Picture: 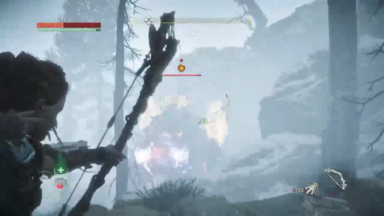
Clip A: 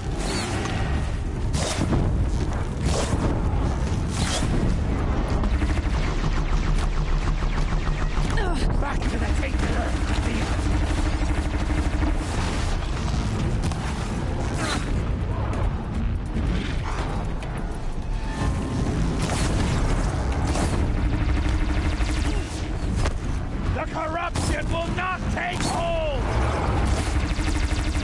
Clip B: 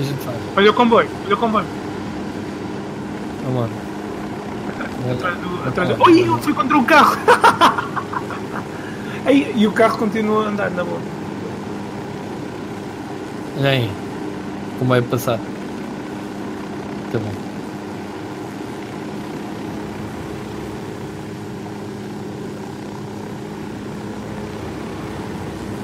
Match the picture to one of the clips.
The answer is A